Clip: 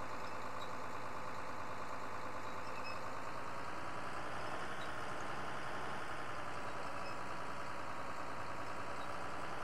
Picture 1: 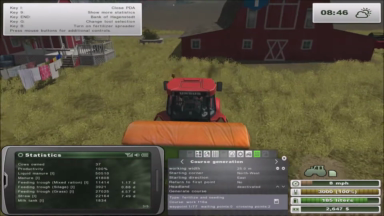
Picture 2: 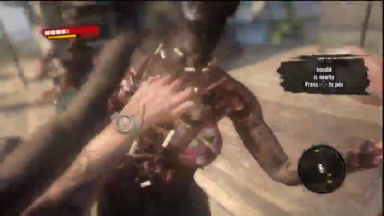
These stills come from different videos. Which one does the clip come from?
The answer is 1